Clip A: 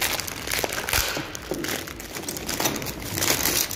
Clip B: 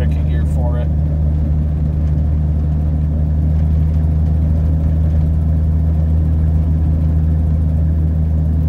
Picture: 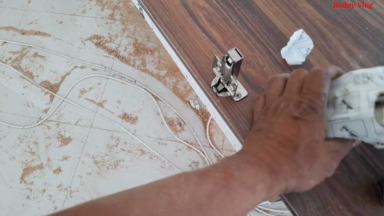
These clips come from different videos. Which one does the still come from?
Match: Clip A